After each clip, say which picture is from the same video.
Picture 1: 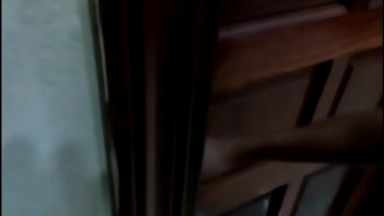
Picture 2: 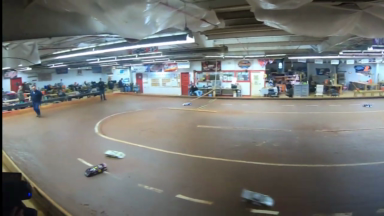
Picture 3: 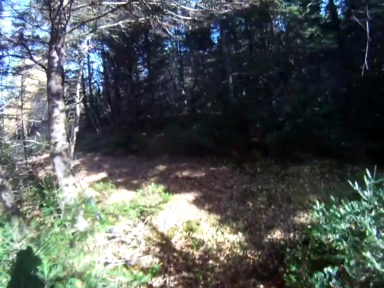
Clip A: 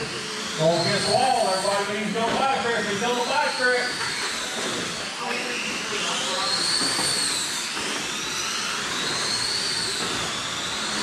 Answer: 2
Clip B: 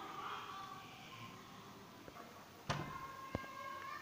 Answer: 1